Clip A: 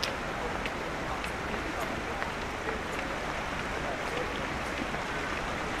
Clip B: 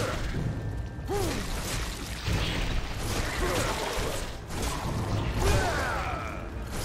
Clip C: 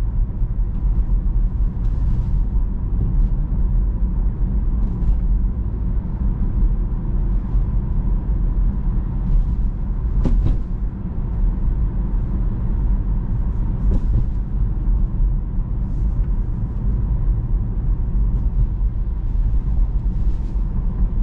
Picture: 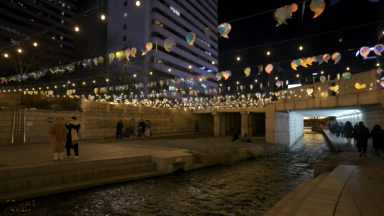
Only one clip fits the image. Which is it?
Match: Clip A